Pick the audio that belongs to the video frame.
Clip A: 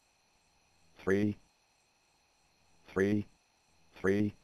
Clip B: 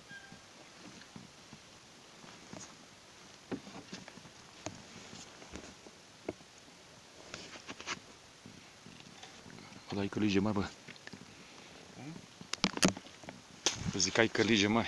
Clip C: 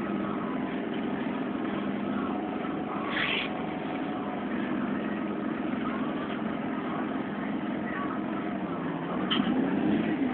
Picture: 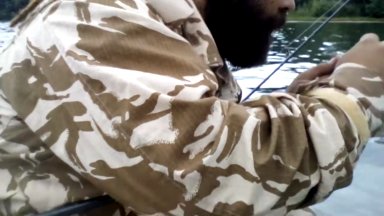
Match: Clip B